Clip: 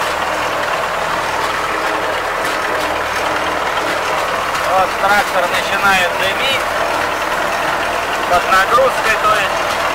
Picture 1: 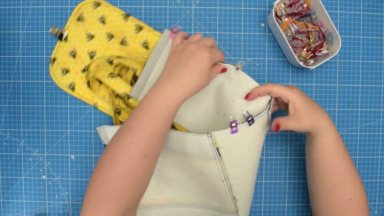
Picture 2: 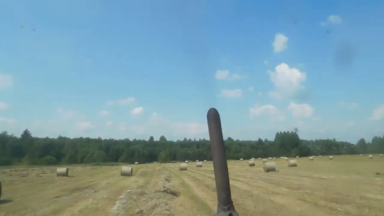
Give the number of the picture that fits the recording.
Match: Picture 2